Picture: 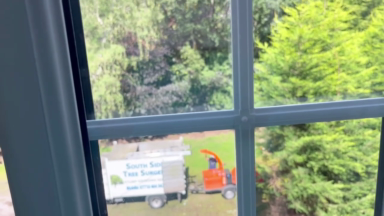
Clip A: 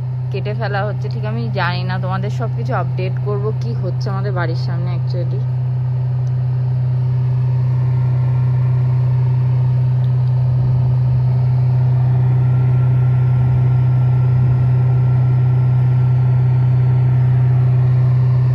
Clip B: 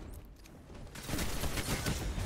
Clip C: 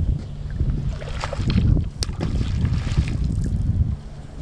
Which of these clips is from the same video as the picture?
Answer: A